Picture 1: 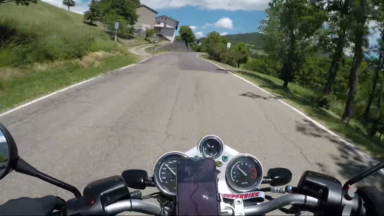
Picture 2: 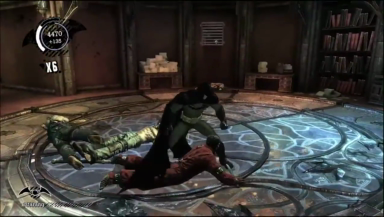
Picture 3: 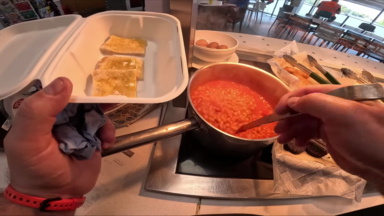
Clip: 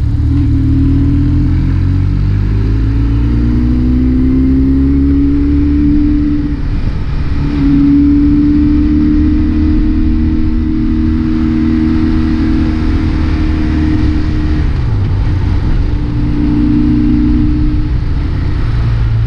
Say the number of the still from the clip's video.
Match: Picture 1